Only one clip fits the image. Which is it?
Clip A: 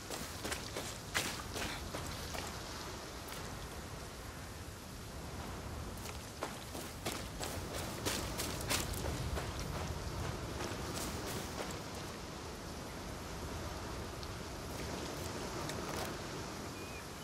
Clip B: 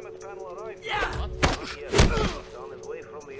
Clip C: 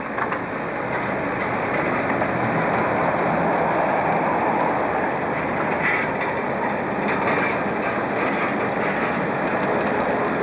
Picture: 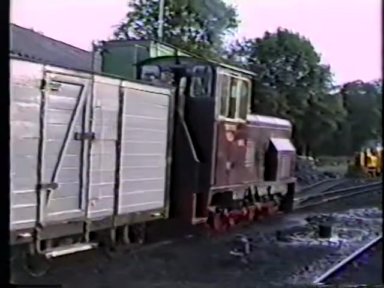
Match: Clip C